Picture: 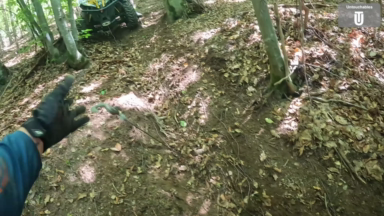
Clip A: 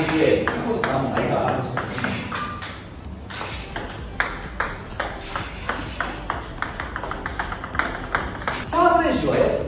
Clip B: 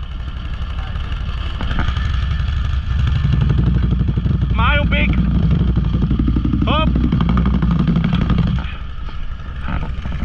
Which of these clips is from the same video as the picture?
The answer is B